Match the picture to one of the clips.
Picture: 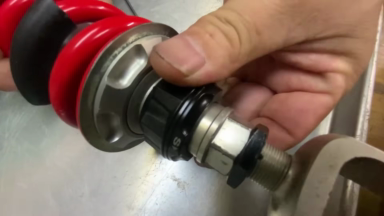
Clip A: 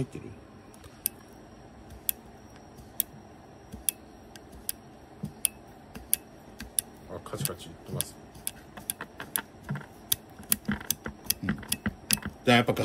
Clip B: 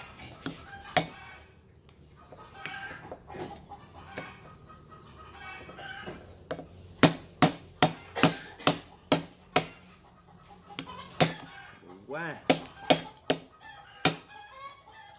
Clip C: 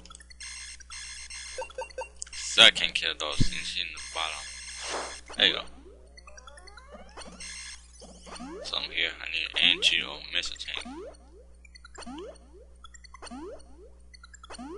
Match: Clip A